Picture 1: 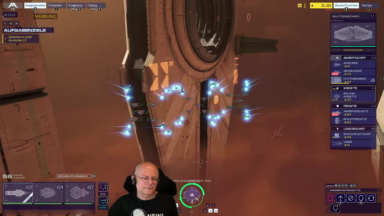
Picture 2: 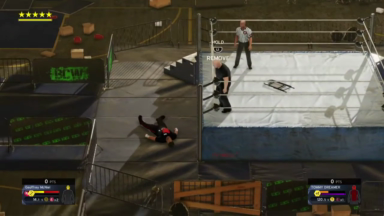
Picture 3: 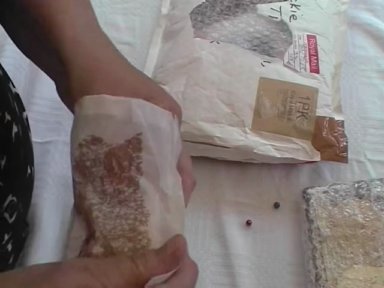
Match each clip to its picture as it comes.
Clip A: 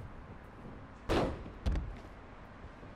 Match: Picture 2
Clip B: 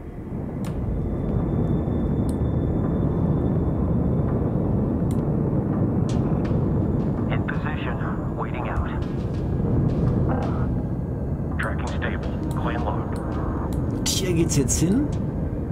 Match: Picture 1